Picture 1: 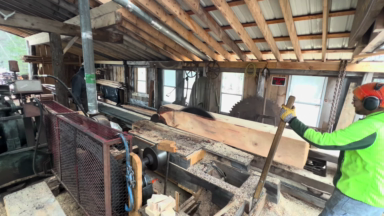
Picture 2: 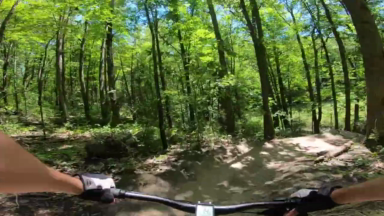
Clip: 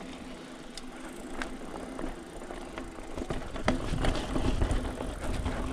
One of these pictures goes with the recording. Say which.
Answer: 2